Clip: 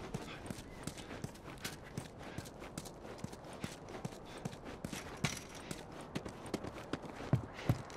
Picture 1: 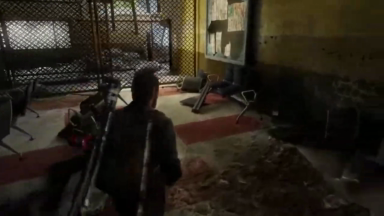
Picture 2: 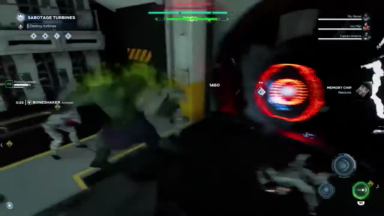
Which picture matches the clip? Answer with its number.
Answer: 1